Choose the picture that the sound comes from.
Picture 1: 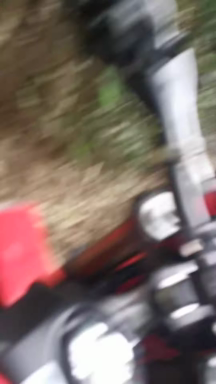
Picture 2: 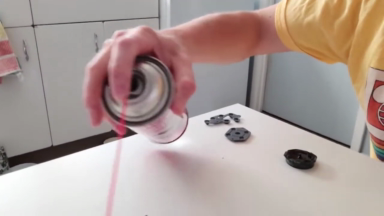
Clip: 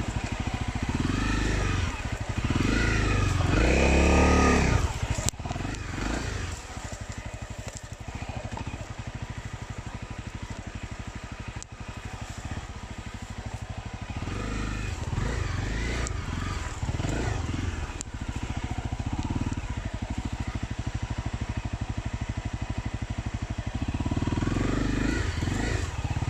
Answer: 1